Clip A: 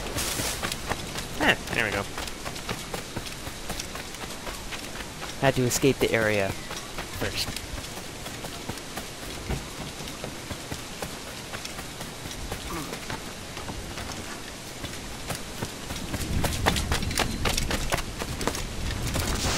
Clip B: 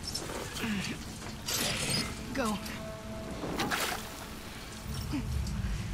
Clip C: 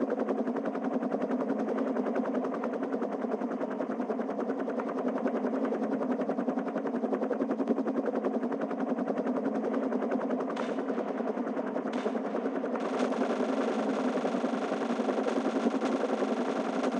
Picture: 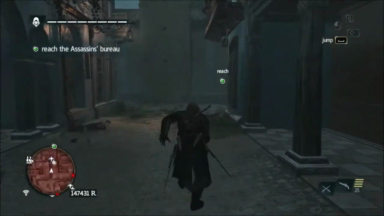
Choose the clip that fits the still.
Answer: A